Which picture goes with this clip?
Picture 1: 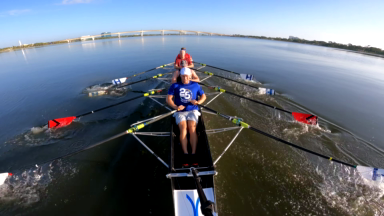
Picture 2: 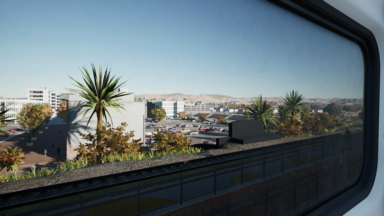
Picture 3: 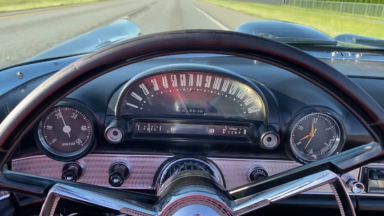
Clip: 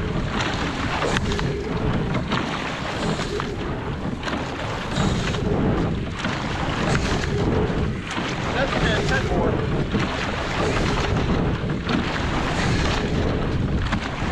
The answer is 1